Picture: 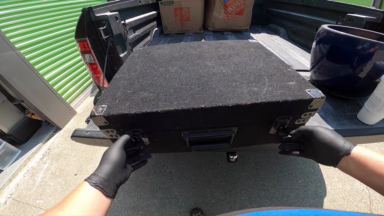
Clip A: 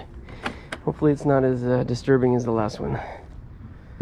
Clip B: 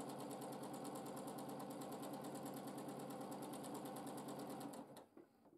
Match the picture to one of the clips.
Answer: A